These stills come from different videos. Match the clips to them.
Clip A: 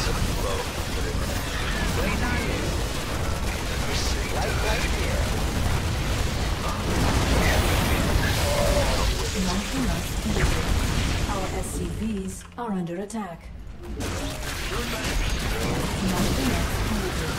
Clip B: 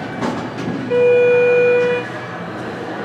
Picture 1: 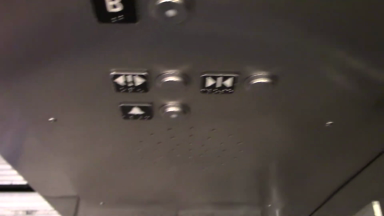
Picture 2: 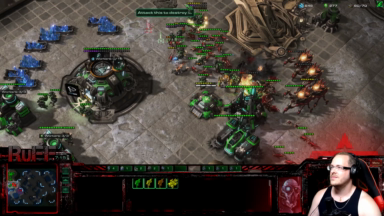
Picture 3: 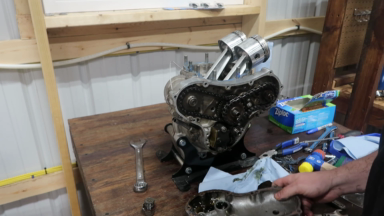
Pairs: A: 2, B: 1